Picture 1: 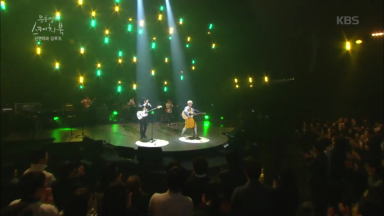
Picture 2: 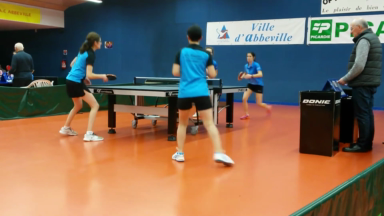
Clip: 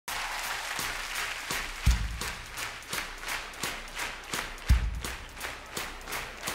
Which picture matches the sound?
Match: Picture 1